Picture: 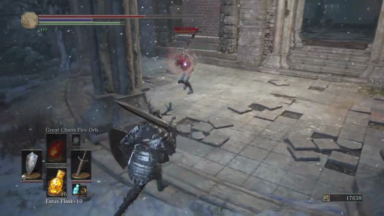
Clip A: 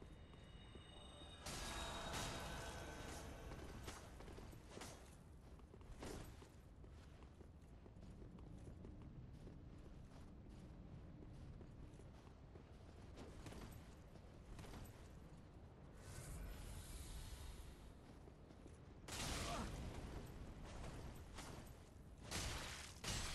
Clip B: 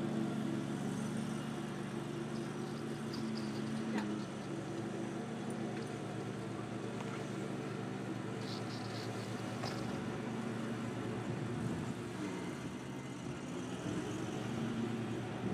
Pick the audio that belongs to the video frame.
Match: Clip A